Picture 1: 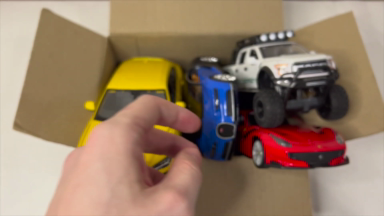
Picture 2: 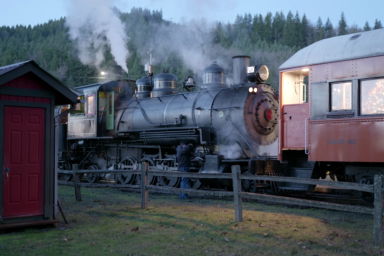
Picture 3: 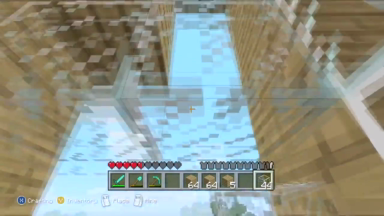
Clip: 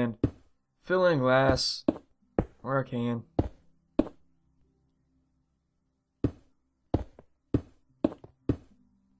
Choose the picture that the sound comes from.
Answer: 3